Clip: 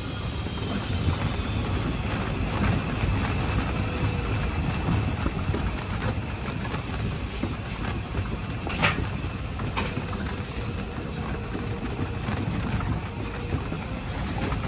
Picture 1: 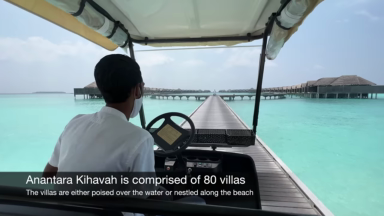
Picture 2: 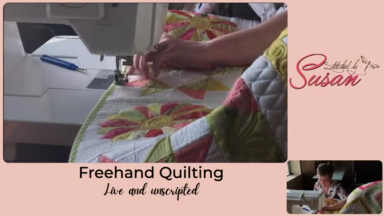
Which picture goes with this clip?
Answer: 1